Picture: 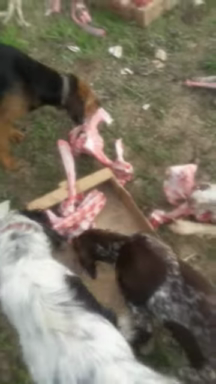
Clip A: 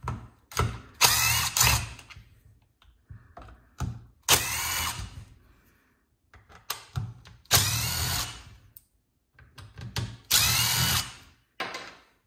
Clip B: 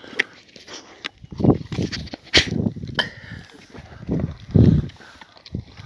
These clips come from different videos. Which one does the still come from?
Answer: B